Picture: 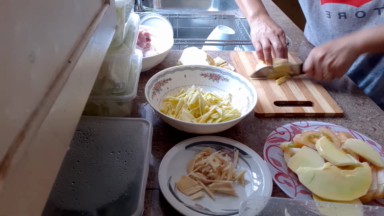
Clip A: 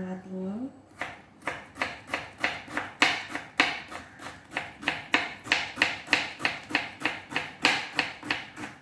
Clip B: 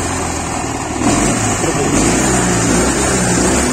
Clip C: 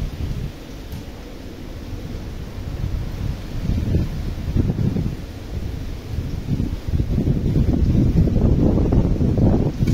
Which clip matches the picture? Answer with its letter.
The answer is A